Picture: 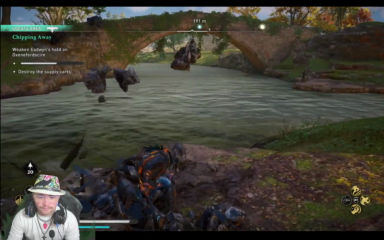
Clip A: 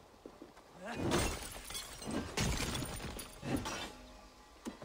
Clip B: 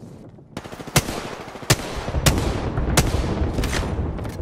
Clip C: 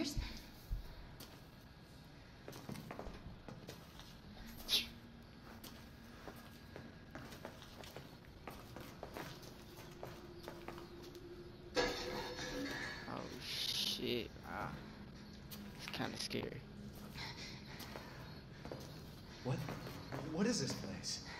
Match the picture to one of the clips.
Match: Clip A